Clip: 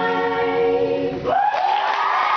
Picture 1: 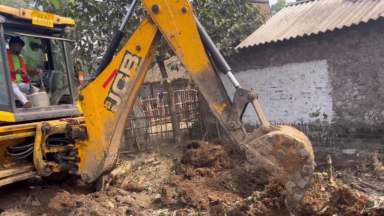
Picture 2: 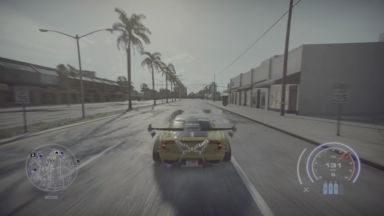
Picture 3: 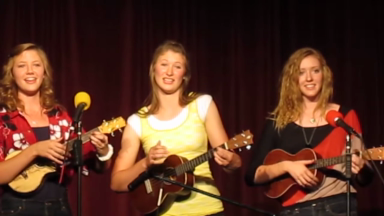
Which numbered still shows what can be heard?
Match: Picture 3